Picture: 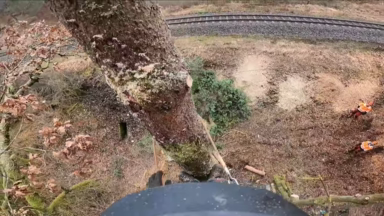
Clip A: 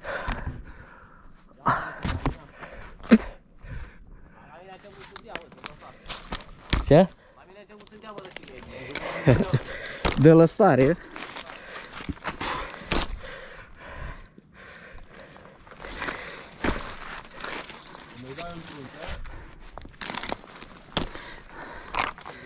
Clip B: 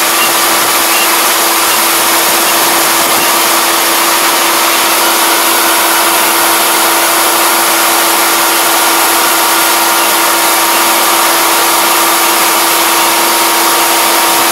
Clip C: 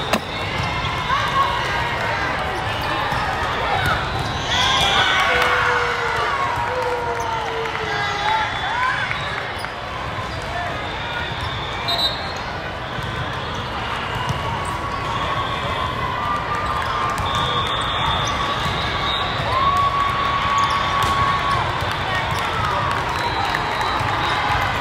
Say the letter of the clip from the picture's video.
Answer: A